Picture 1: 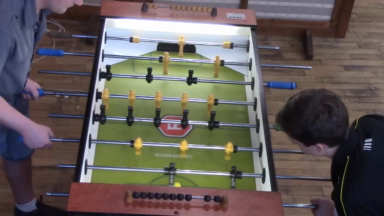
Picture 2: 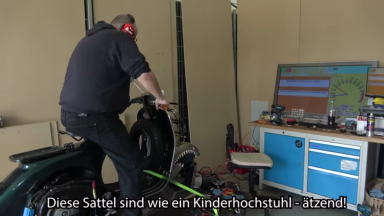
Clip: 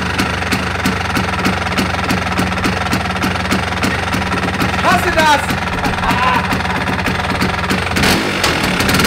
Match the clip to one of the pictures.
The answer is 2